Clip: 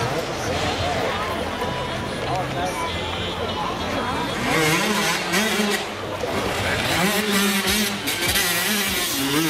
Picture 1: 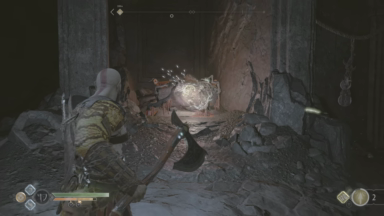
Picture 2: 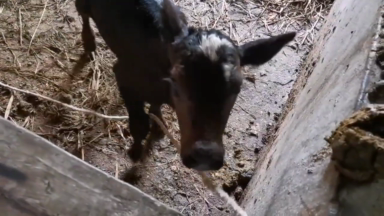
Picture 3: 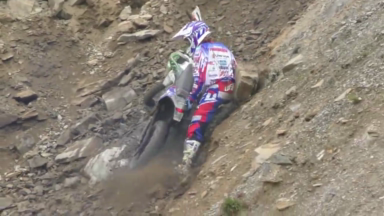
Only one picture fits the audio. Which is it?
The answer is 3